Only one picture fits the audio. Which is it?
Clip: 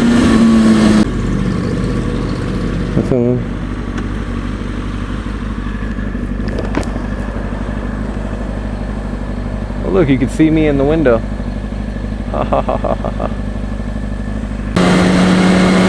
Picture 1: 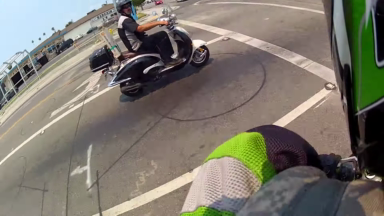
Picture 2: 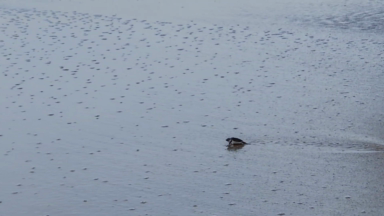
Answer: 1